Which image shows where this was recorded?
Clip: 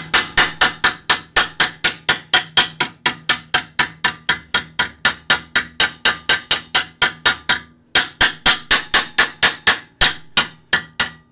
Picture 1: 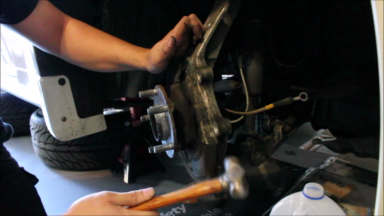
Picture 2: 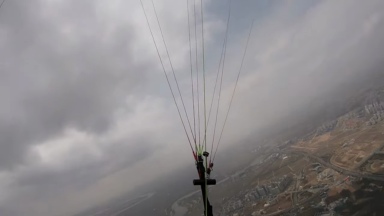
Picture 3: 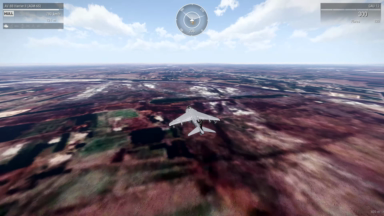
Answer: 1